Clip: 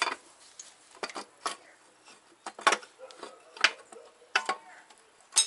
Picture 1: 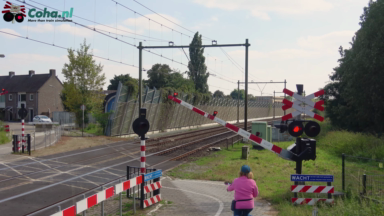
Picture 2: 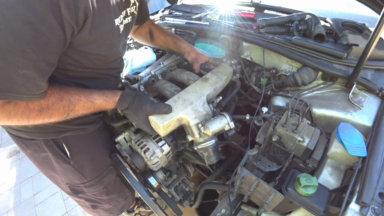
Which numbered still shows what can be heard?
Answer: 2